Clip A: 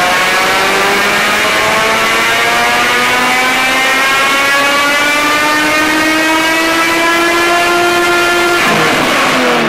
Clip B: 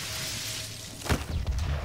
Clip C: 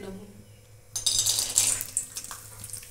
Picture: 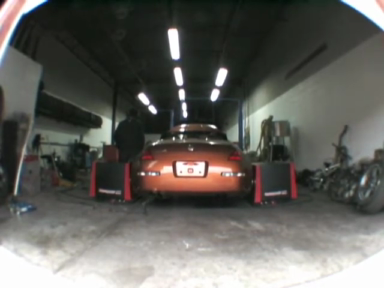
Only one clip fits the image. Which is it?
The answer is A